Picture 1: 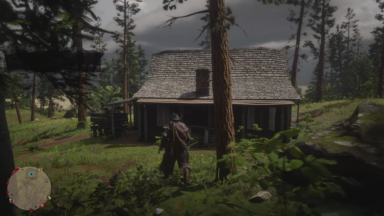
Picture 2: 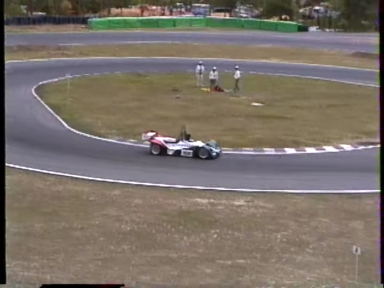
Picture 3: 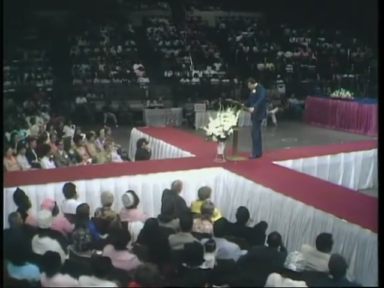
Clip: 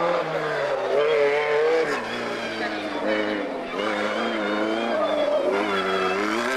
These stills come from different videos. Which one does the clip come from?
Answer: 2